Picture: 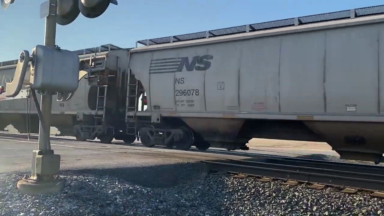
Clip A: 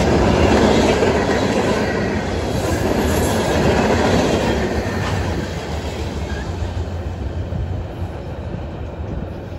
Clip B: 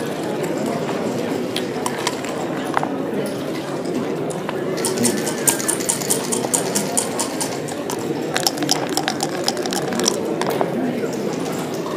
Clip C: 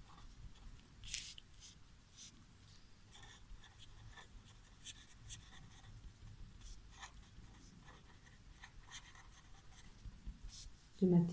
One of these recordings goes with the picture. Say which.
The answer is A